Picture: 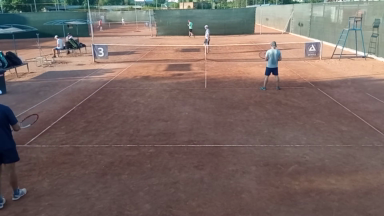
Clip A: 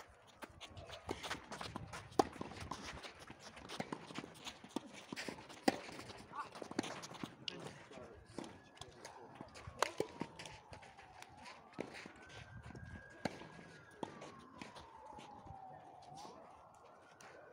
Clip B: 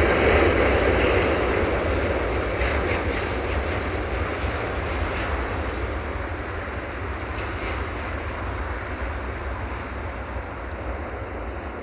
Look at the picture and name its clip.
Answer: A